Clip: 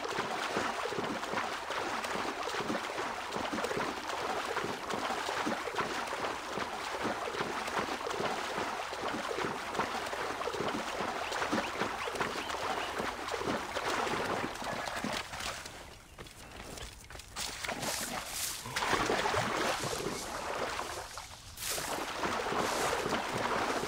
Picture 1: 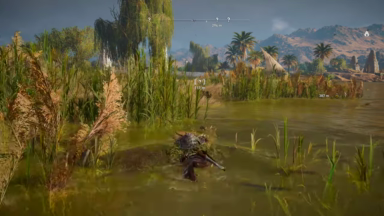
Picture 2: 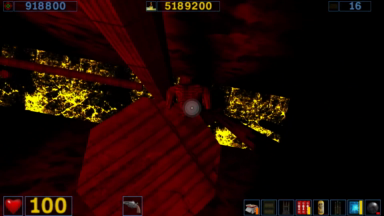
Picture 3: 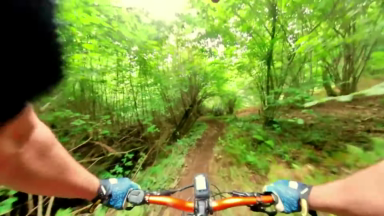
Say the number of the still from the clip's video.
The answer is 1